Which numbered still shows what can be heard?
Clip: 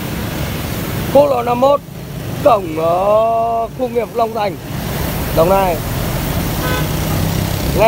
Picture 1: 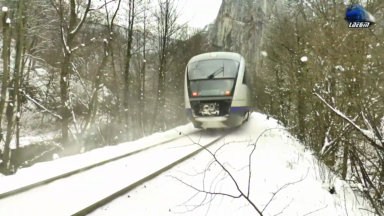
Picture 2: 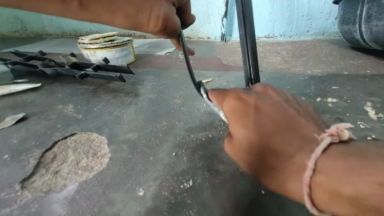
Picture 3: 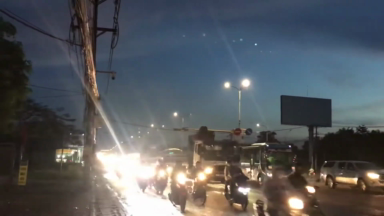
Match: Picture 3